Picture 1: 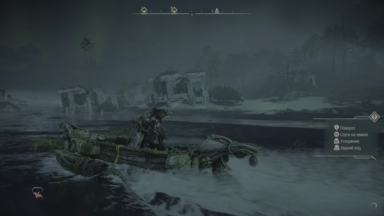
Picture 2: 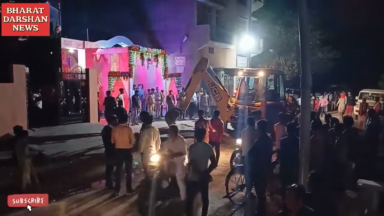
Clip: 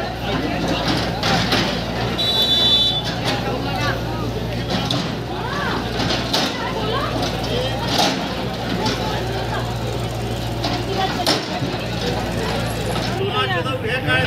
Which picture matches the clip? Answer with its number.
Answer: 2